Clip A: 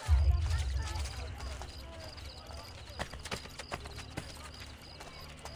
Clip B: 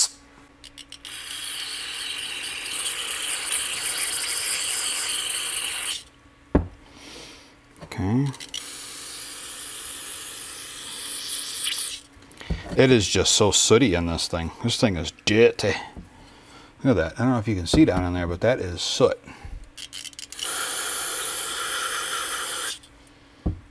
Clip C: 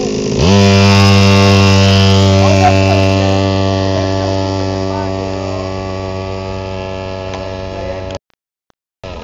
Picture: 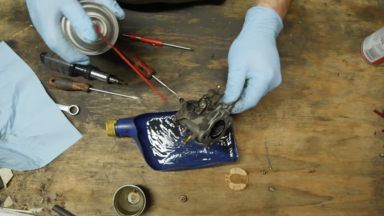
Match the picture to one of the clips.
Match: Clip B